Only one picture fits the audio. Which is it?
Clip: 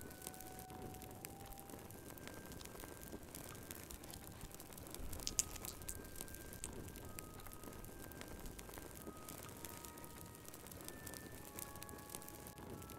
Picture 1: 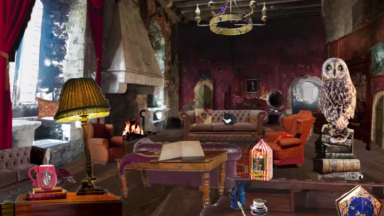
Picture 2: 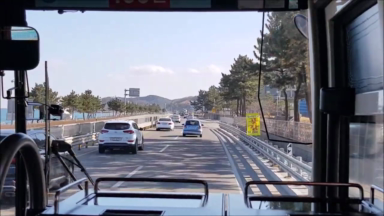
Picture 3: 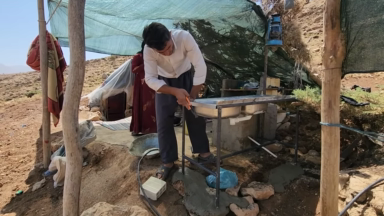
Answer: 1